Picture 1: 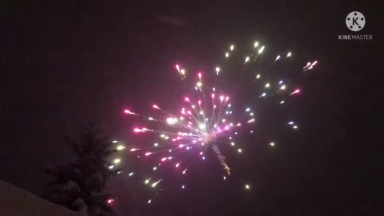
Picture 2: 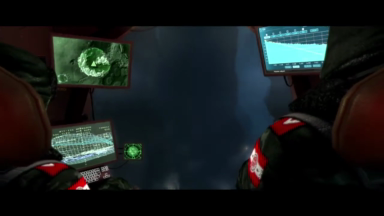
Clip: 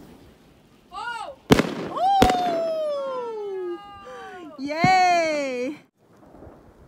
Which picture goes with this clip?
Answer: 1